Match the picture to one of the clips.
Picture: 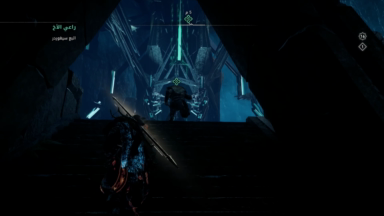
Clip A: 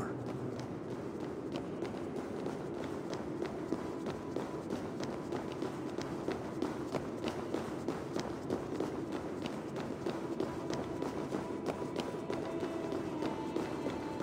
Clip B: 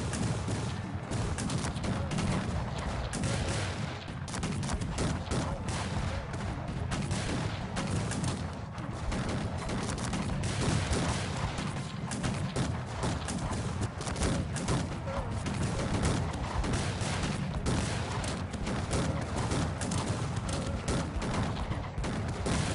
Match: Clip A